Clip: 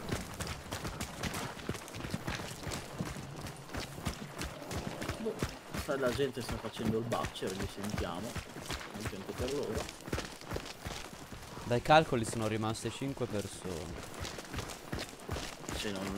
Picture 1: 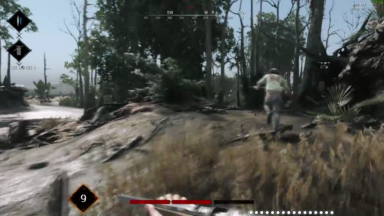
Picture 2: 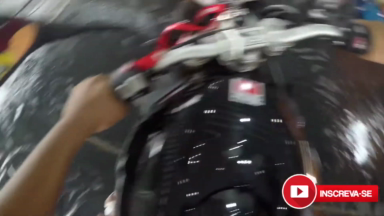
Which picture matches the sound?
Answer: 1